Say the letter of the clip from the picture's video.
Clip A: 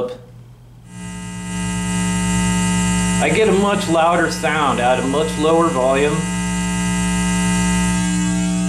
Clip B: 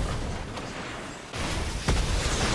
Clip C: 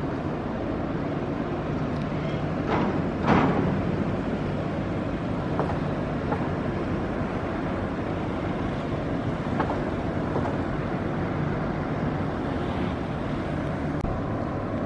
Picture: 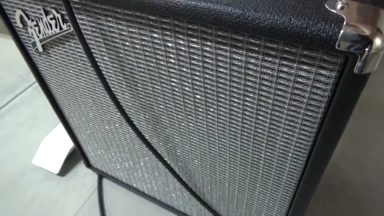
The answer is A